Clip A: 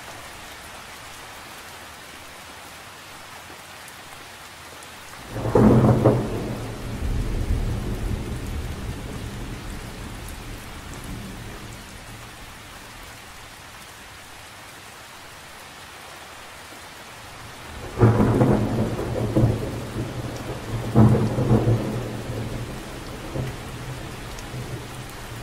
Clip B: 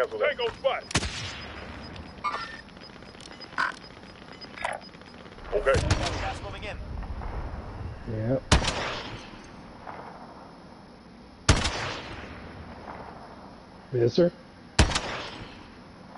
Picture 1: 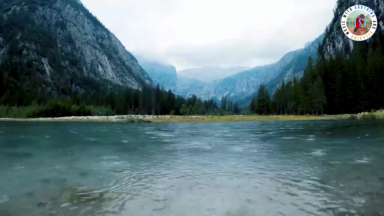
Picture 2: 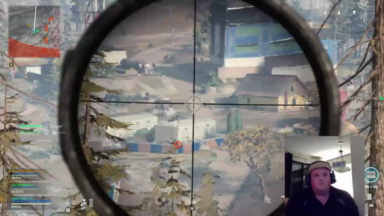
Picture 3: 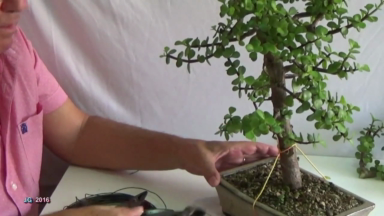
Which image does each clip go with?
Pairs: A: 1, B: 2